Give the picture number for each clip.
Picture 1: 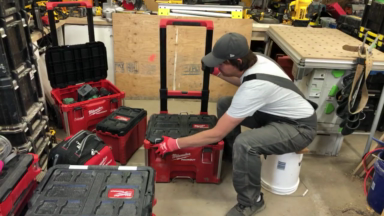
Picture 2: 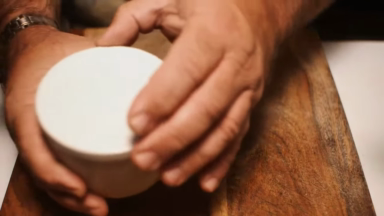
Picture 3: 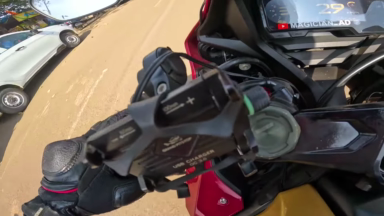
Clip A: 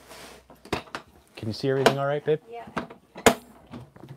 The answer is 1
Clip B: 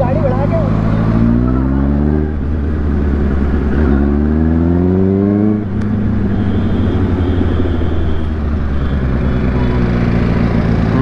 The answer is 3